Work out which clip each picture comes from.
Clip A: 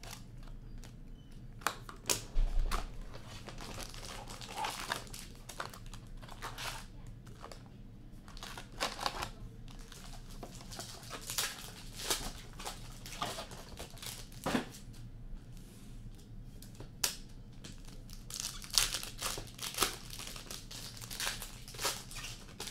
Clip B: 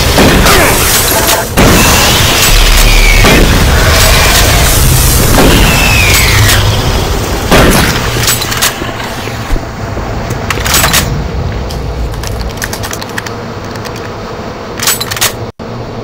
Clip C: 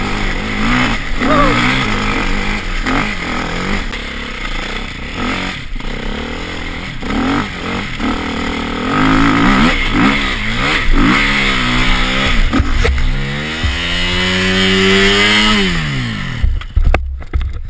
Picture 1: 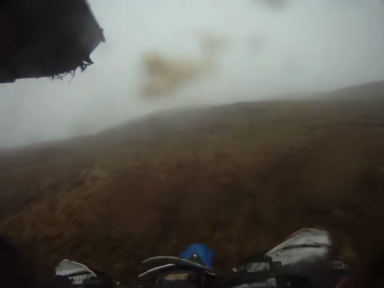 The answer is C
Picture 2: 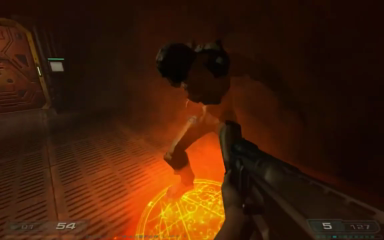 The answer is B